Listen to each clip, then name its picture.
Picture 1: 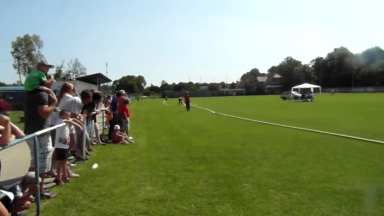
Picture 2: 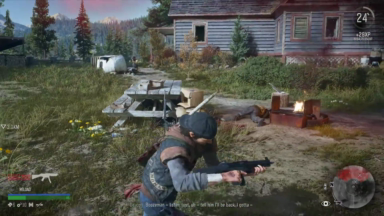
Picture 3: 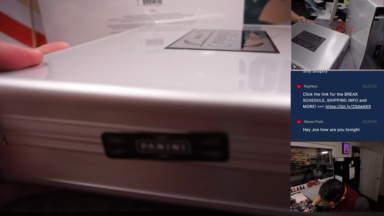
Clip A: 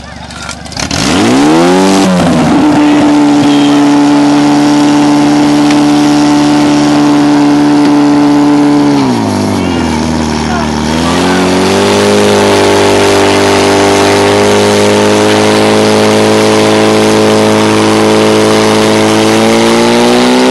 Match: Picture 1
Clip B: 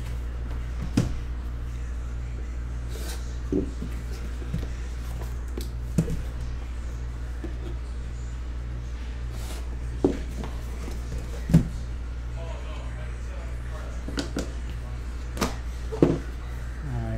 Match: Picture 3